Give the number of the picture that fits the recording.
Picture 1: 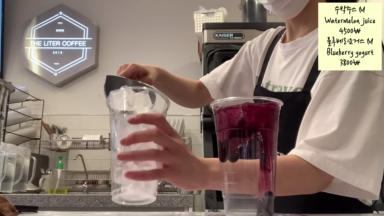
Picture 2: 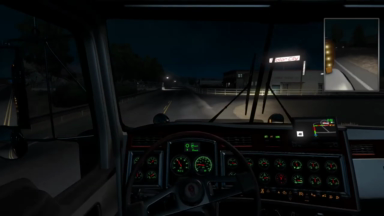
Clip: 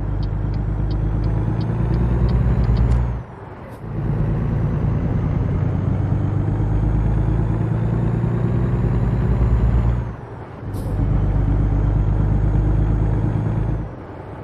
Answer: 2